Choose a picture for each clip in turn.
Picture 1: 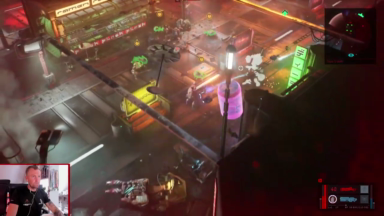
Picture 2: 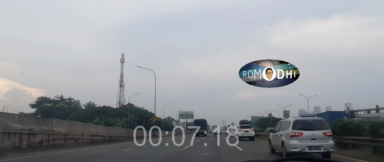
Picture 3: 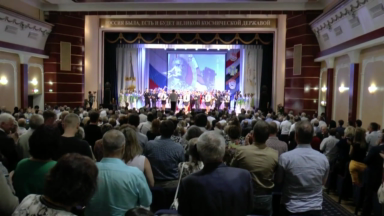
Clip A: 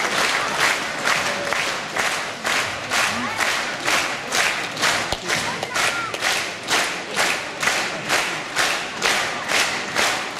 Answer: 3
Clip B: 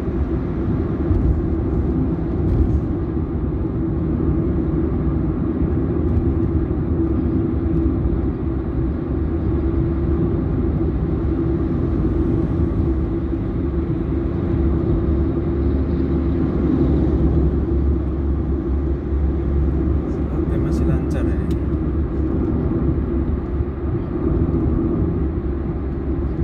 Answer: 2